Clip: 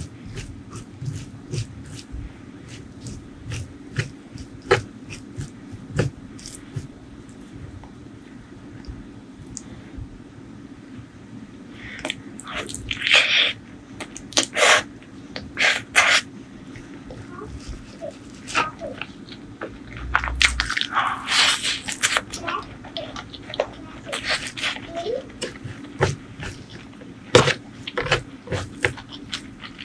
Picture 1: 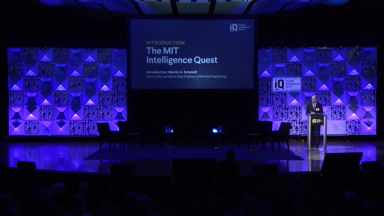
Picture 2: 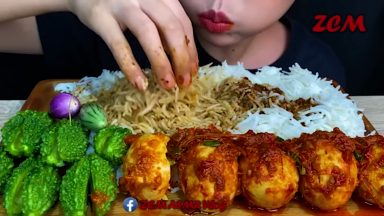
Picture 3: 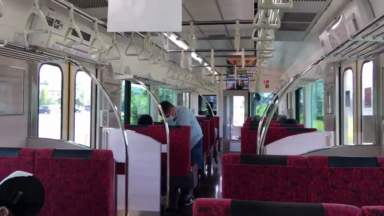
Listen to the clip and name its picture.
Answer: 2